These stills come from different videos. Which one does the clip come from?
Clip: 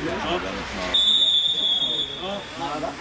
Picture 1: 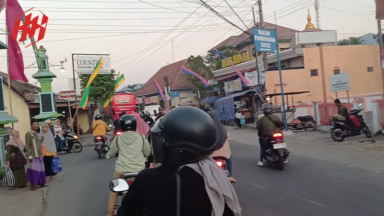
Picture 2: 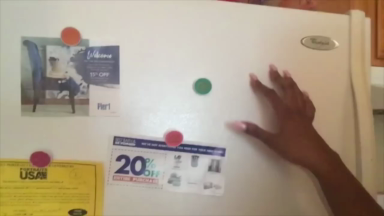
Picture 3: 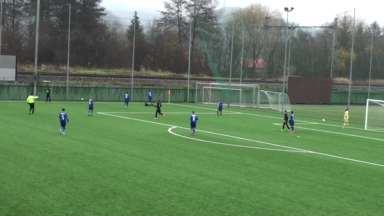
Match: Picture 3